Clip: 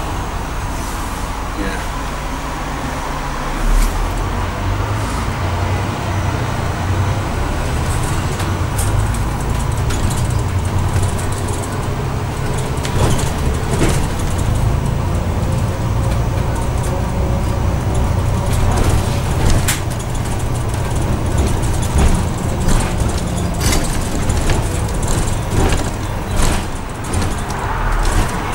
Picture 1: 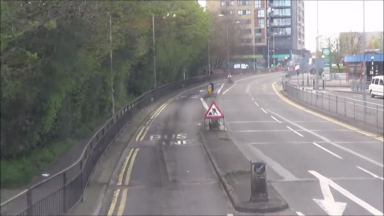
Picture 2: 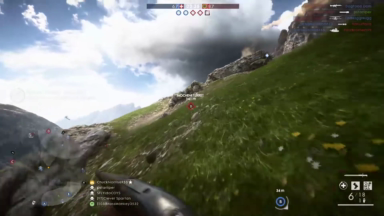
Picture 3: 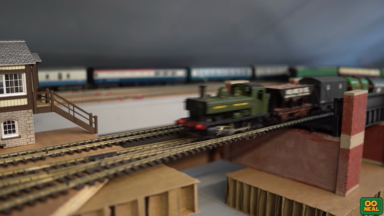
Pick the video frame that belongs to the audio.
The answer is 1